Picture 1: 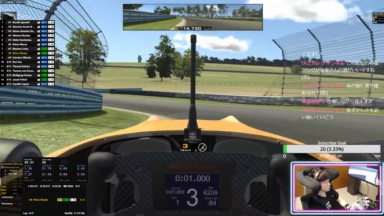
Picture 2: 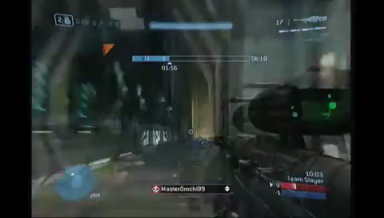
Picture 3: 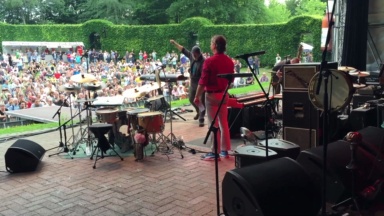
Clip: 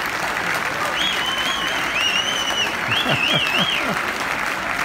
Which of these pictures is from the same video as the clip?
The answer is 3